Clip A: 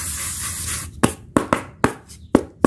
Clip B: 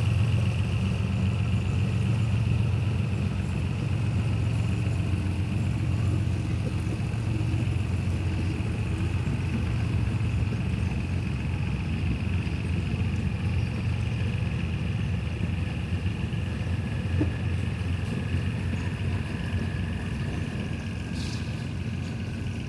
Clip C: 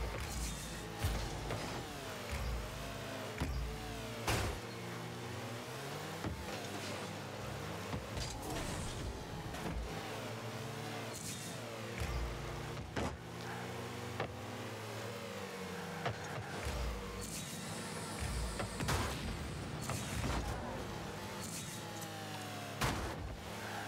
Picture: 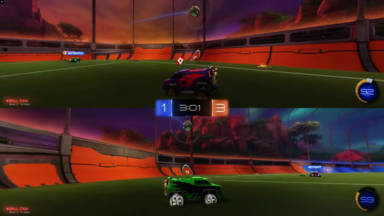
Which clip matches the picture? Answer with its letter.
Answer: C